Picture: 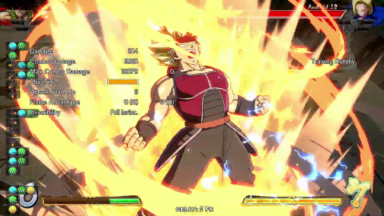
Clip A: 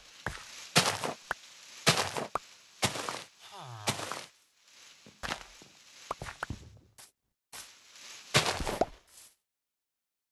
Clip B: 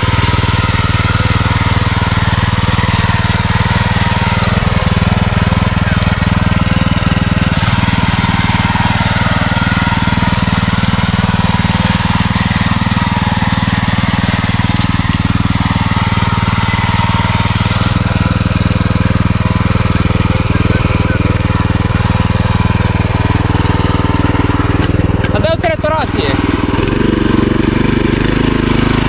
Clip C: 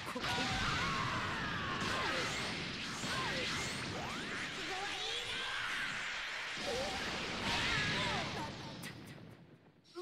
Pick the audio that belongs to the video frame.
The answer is C